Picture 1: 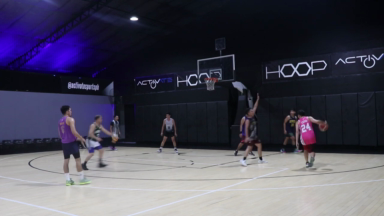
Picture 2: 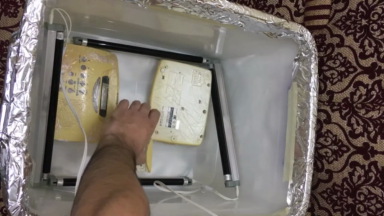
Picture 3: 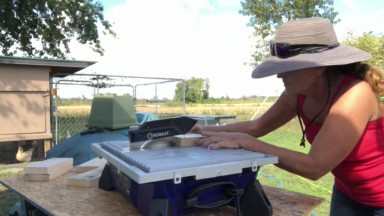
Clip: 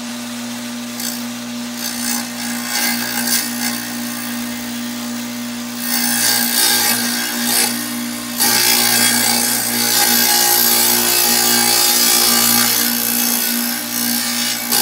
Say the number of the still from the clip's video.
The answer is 3